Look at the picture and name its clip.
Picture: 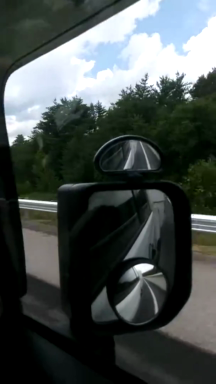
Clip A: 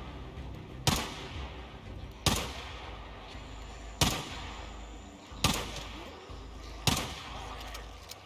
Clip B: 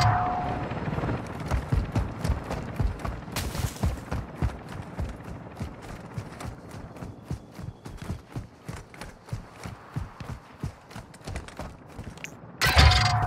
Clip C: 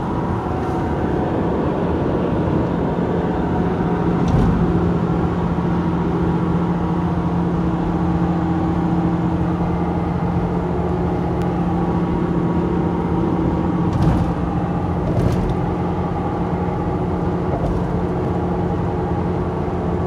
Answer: C